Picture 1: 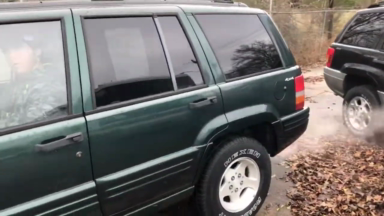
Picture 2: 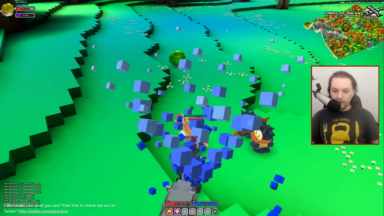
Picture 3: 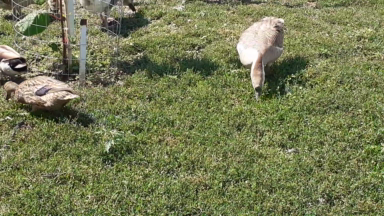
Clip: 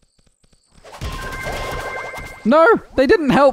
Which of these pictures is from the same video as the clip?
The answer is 2